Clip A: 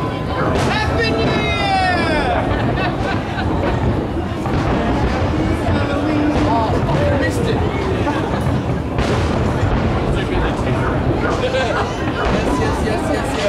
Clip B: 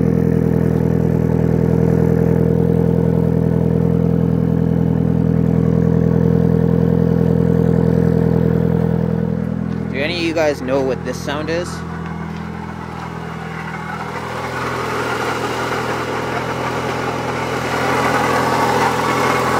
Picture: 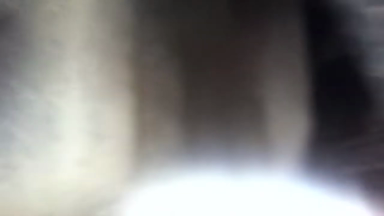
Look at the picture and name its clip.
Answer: B